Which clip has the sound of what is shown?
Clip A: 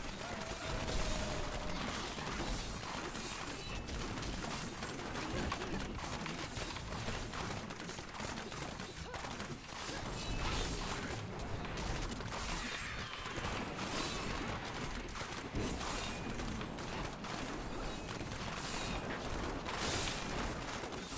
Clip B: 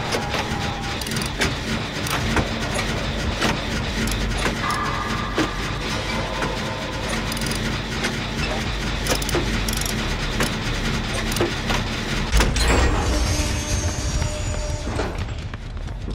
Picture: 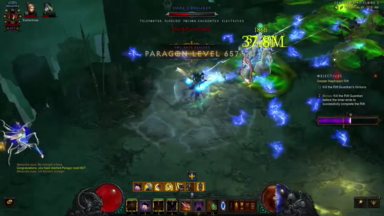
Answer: A